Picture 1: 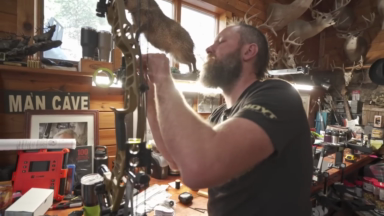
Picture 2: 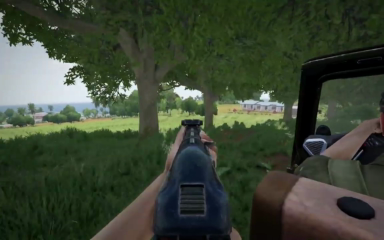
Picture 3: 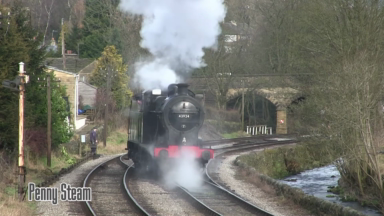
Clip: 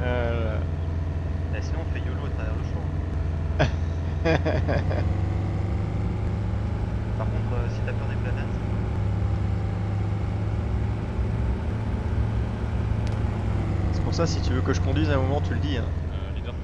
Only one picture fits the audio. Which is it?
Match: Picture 2